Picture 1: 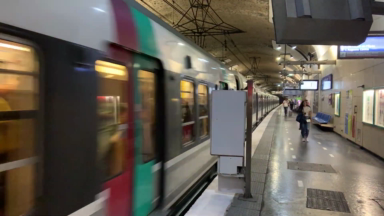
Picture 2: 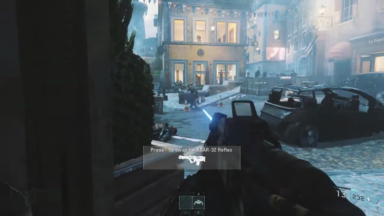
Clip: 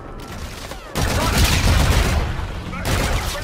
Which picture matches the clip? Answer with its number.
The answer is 2